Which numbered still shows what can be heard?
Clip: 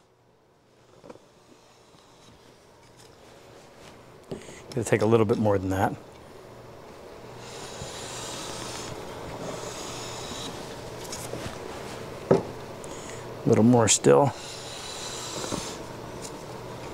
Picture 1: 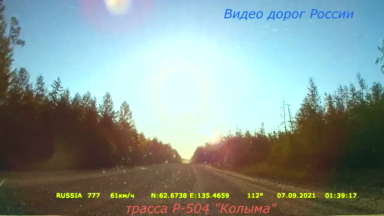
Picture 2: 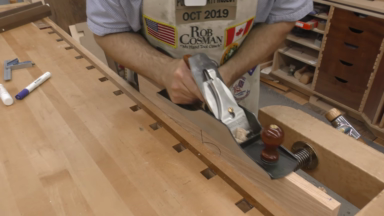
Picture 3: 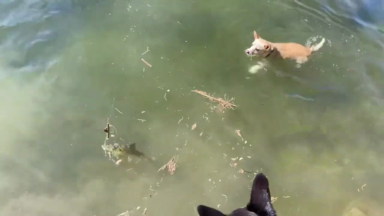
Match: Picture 2